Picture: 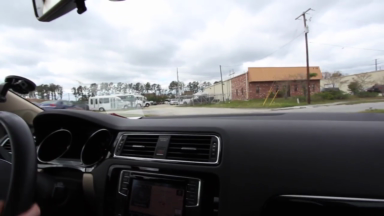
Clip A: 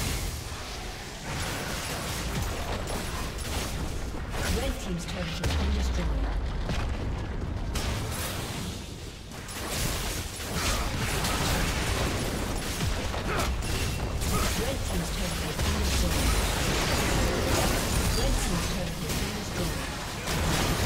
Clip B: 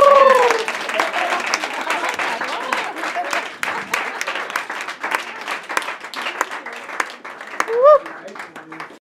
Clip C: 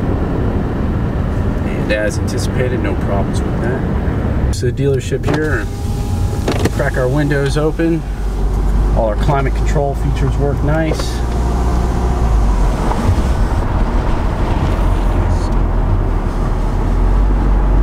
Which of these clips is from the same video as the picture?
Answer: C